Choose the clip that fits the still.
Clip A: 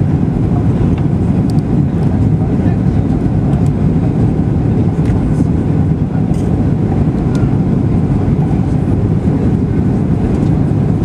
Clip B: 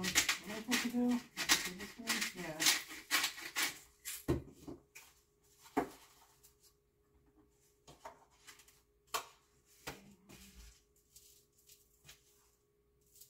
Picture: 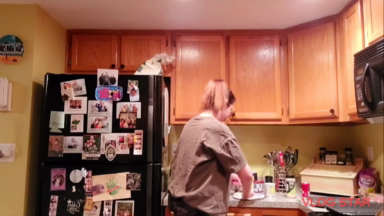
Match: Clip B